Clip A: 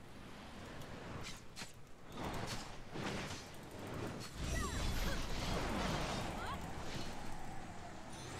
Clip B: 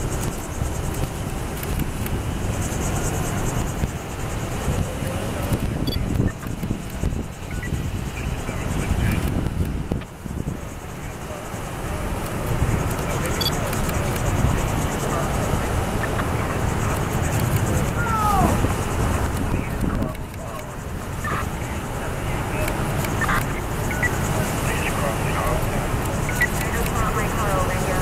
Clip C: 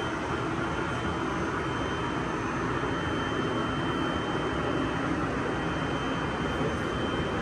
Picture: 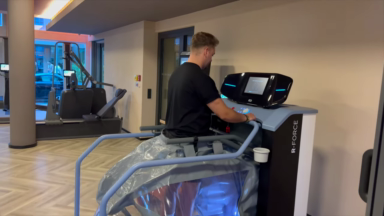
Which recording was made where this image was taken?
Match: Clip C